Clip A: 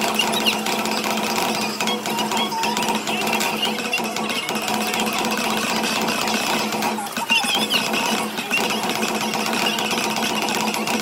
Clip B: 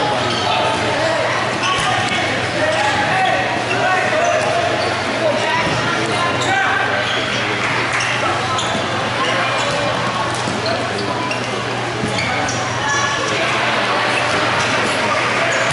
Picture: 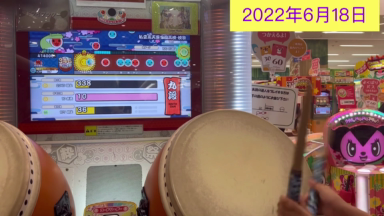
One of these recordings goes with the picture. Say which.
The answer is A